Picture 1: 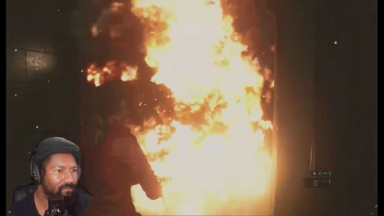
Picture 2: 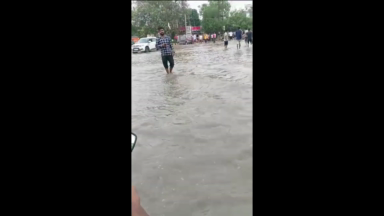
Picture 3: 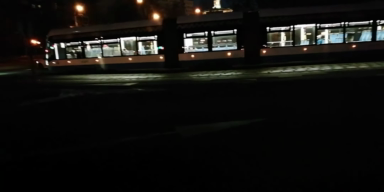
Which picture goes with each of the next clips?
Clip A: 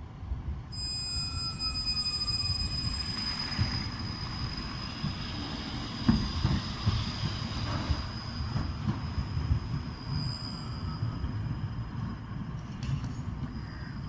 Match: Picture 3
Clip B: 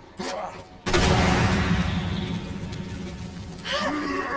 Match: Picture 1